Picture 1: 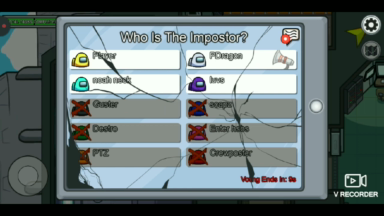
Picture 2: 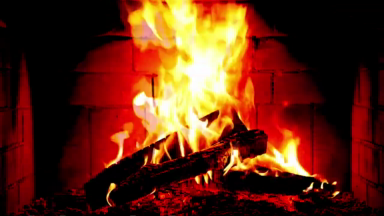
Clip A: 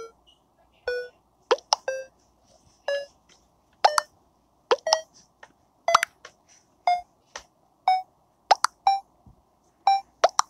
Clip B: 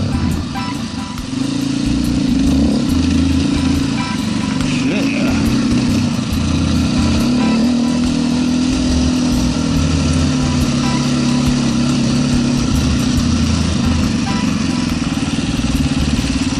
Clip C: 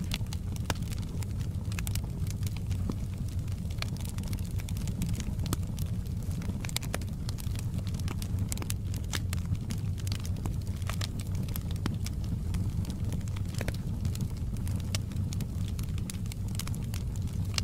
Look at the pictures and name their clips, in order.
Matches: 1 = A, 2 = C